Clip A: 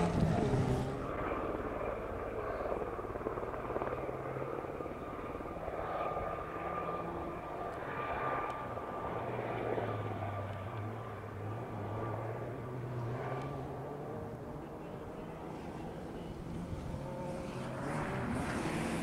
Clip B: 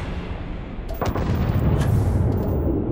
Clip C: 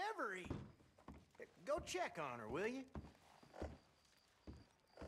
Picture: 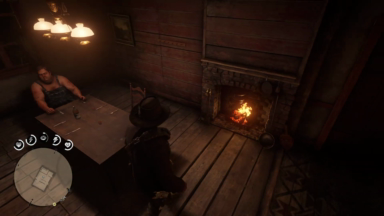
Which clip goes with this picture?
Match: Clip C